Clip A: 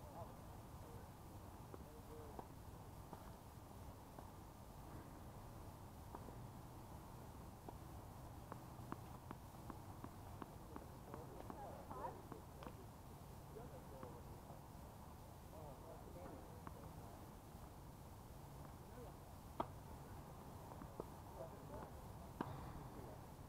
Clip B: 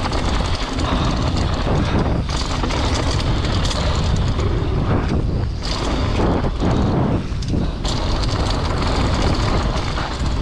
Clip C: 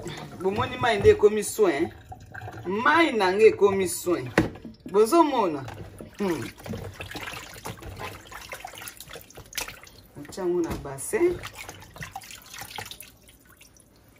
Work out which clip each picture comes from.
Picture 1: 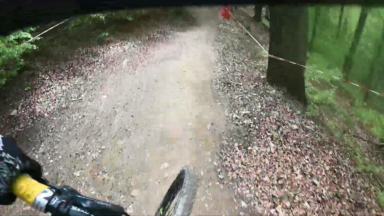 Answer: B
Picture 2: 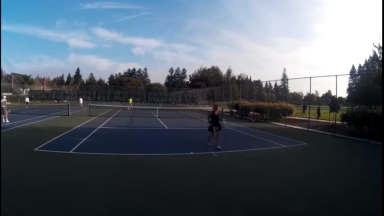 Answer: A